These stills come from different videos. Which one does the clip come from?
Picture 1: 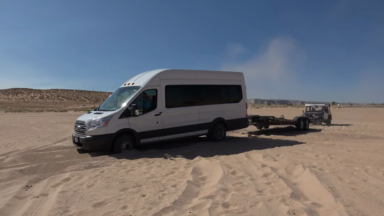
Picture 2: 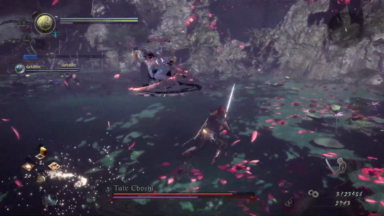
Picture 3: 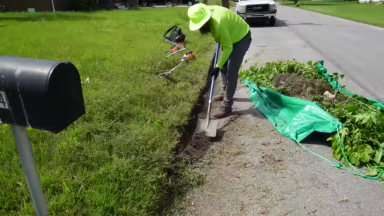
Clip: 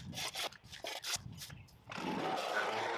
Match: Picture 3